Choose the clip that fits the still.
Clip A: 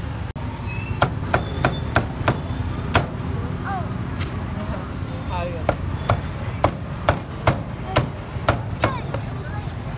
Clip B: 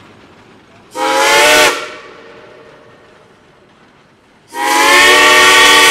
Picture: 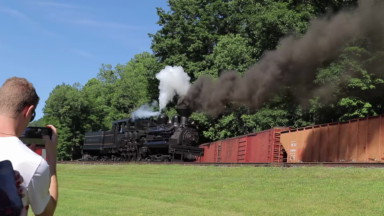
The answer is B